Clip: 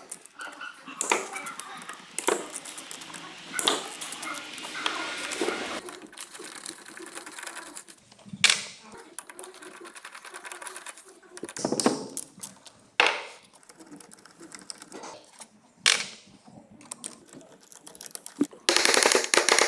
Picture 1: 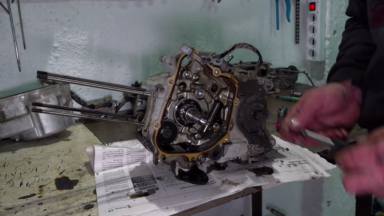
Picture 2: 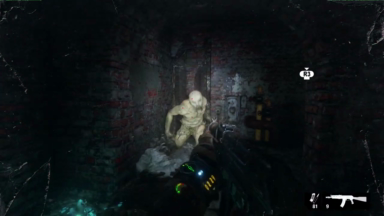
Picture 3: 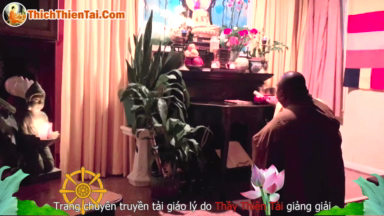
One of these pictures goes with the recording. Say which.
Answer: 1